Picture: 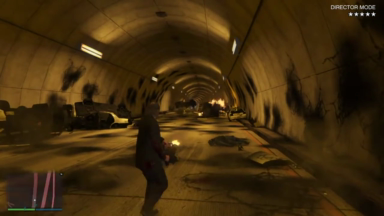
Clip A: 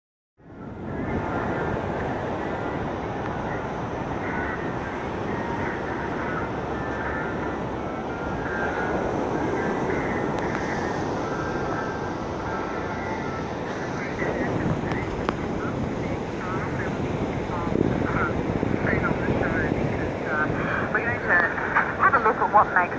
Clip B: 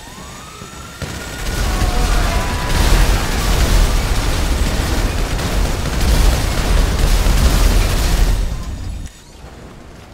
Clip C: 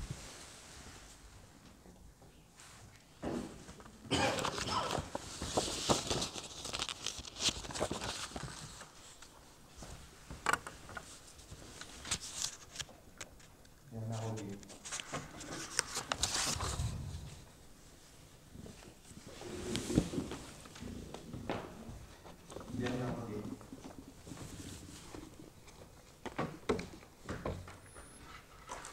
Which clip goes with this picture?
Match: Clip B